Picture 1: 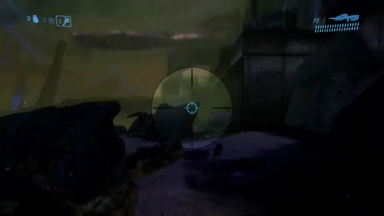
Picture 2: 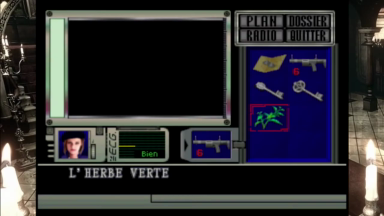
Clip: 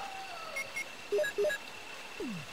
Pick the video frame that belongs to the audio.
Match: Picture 2